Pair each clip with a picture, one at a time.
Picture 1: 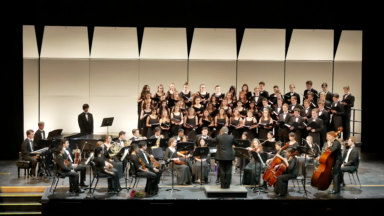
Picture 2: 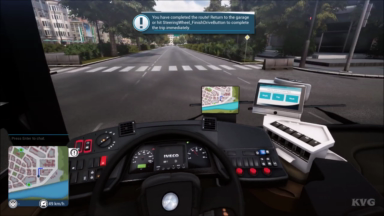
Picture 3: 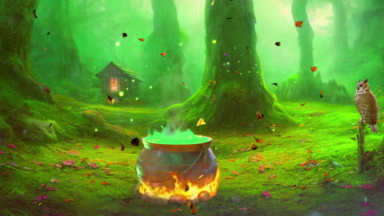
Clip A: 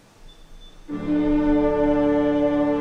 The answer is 1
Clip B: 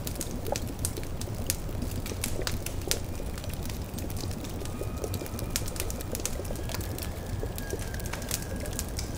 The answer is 3